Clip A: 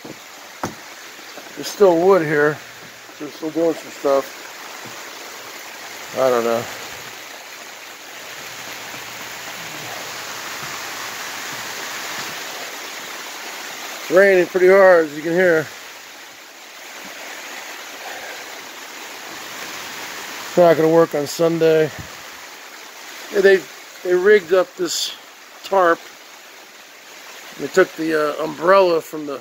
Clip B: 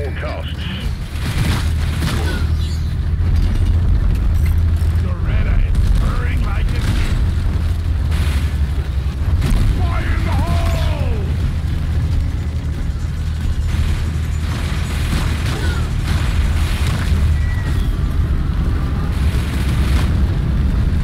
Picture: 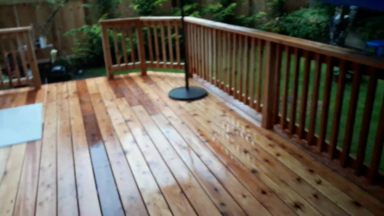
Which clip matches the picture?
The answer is A